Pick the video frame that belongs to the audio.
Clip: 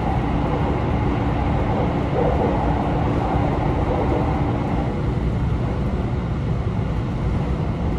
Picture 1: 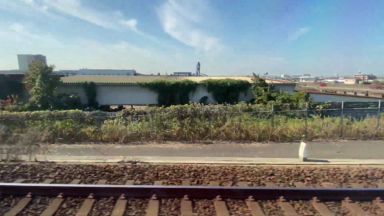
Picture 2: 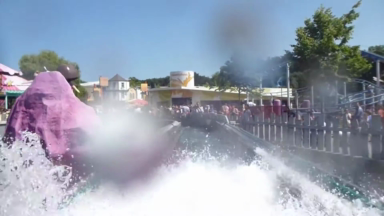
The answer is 1